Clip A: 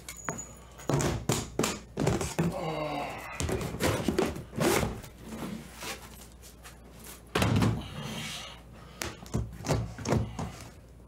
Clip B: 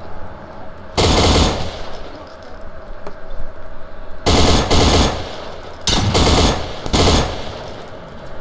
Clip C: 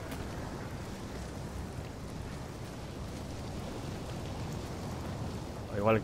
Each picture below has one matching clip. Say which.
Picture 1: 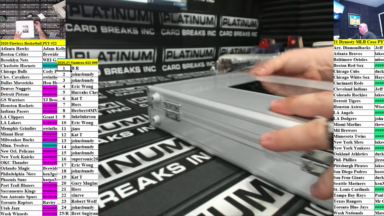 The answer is A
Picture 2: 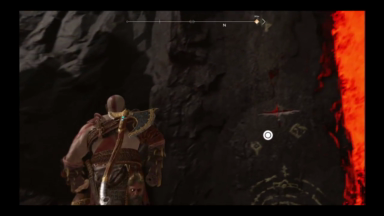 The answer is C